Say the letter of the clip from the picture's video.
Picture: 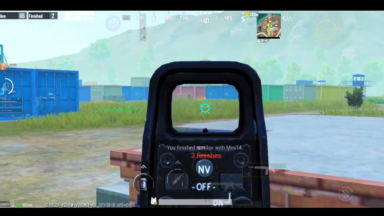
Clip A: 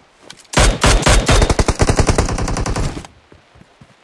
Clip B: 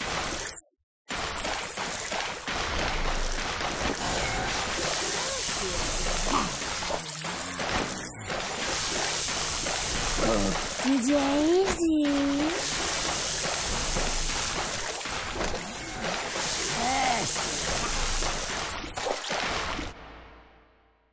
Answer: A